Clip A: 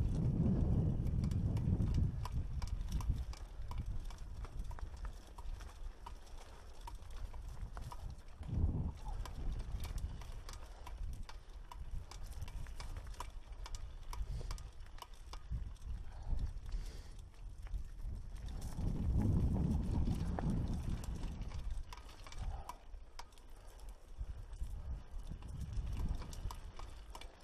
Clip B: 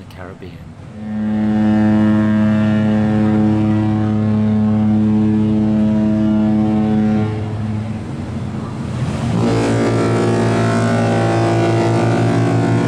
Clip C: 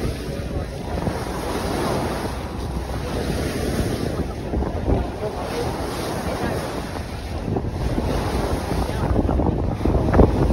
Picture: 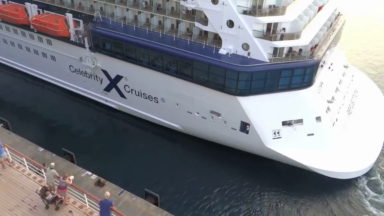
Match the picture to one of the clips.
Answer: B